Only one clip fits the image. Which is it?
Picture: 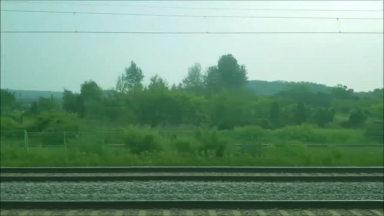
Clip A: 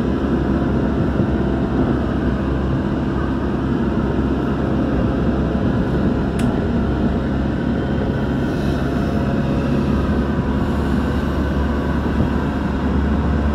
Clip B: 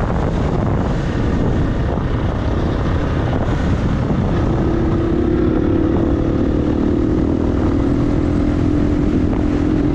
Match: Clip A